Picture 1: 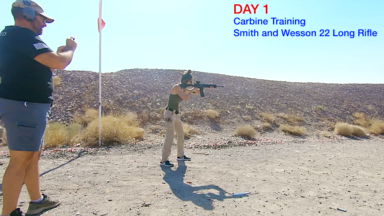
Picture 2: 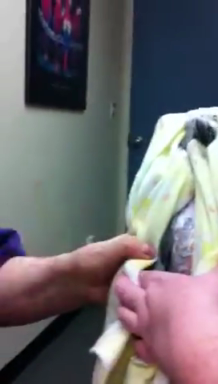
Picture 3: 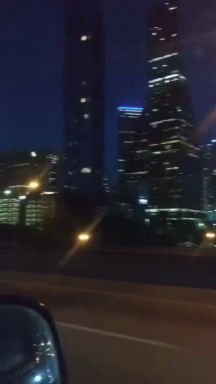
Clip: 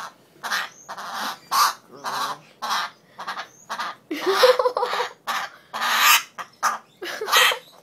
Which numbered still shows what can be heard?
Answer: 2